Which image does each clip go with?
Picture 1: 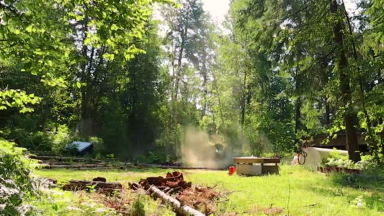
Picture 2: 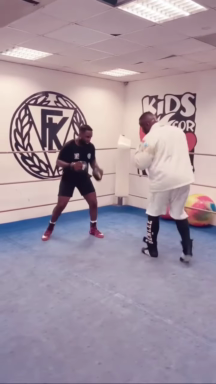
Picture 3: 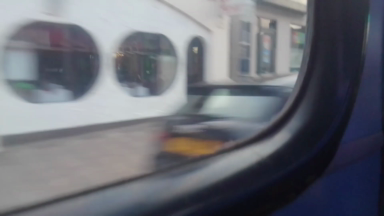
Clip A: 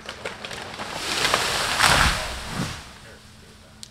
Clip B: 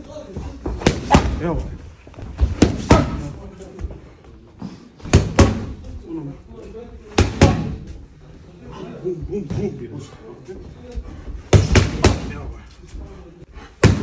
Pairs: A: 1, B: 2